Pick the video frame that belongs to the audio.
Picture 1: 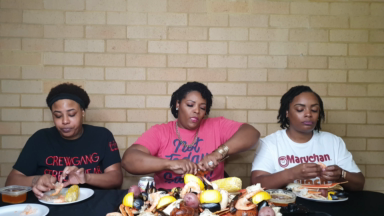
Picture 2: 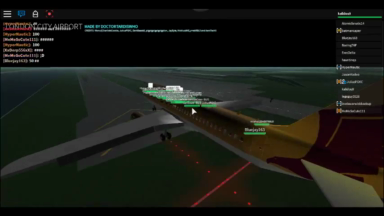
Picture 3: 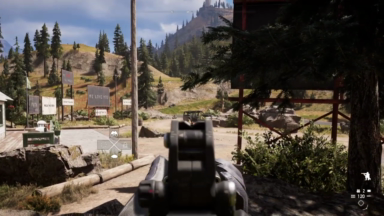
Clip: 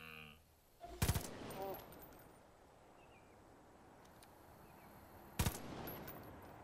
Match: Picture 3